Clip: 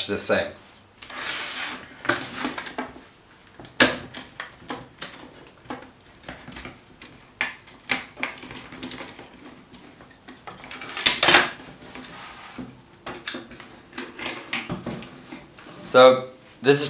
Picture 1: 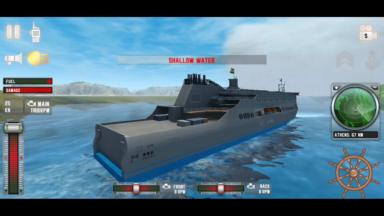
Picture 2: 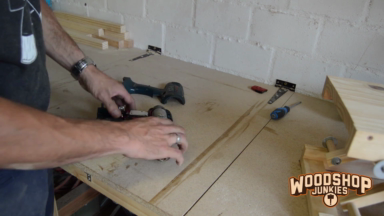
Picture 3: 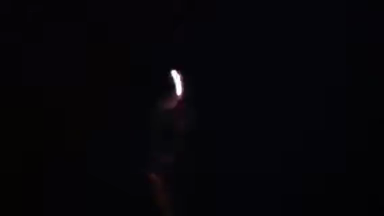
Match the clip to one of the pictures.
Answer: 2